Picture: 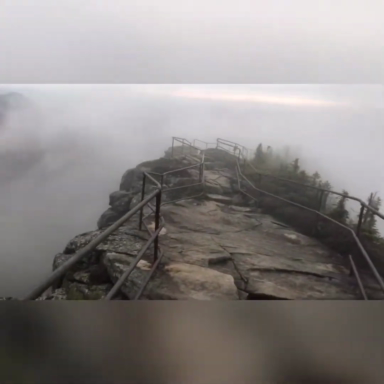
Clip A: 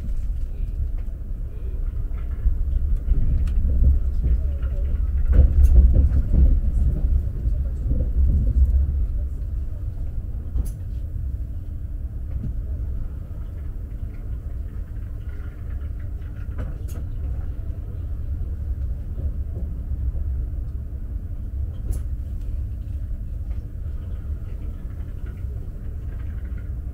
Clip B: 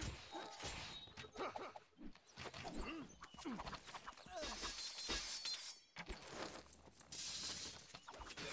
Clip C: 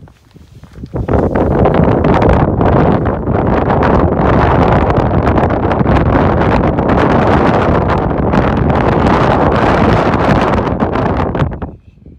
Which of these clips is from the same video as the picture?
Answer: C